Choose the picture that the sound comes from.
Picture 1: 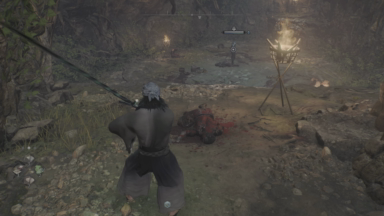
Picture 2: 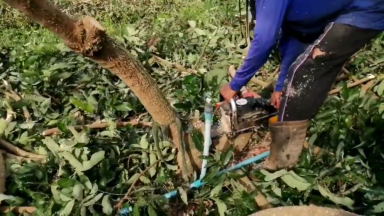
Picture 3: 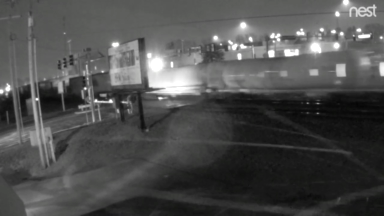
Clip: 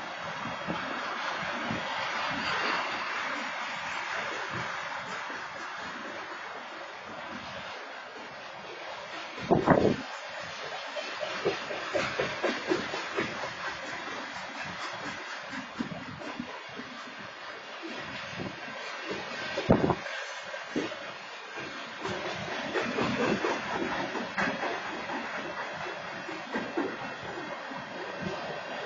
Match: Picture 3